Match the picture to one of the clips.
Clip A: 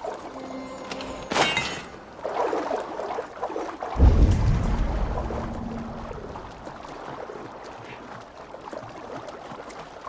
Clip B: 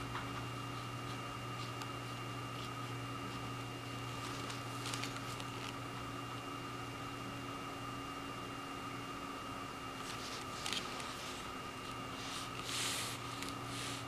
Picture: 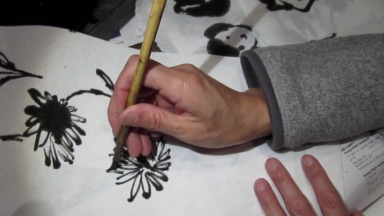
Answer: B